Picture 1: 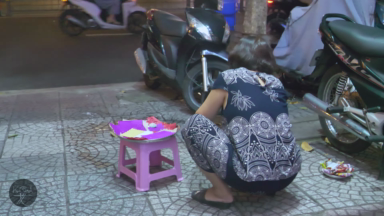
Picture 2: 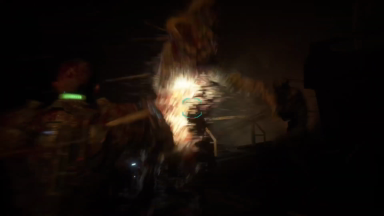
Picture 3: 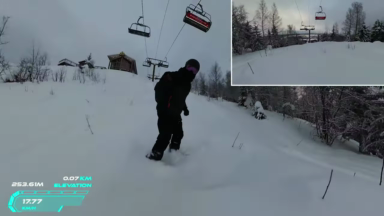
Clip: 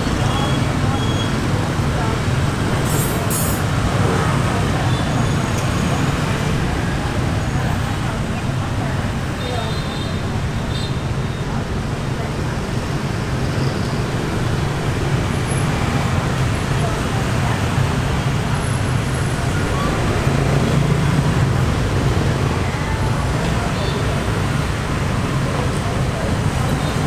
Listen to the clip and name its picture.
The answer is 1